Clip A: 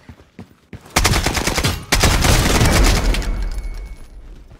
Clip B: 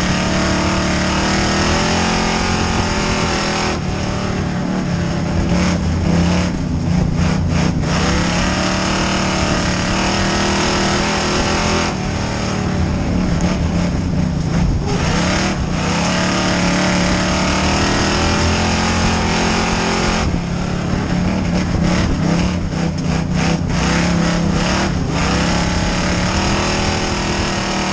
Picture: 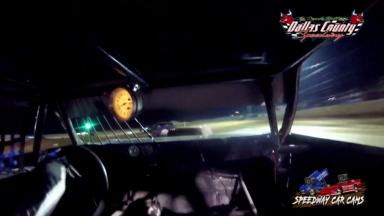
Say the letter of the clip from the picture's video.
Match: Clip B